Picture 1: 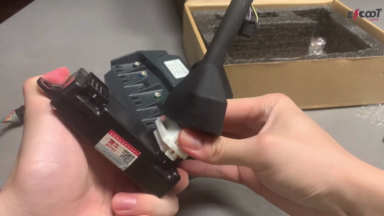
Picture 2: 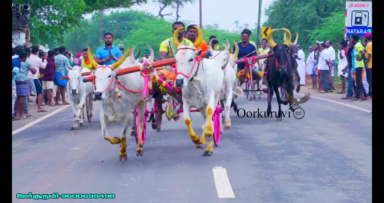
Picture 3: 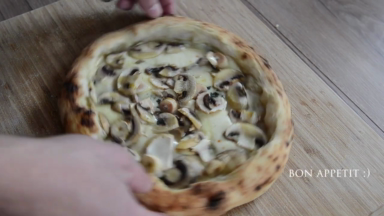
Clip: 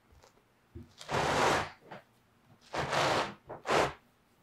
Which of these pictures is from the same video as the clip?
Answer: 3